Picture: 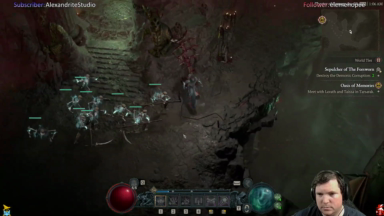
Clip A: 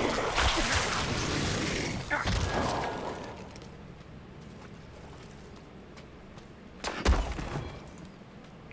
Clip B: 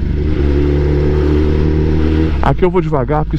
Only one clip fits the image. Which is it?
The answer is A